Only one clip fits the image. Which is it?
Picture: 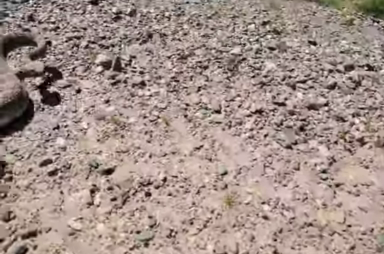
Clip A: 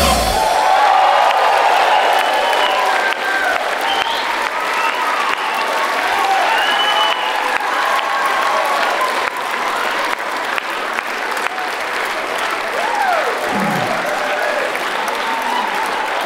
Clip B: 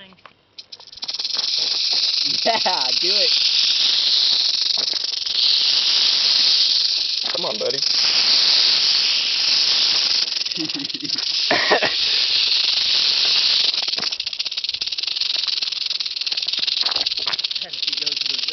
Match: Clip B